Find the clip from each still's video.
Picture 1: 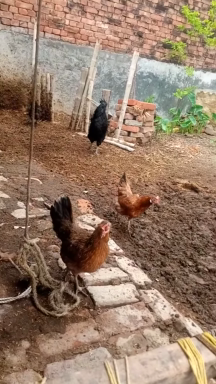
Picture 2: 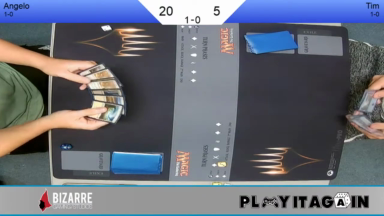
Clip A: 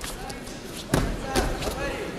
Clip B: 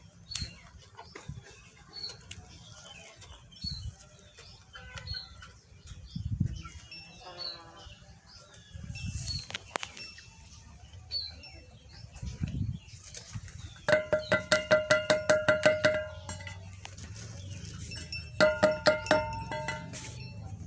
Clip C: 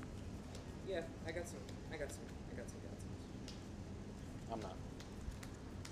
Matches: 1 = B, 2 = C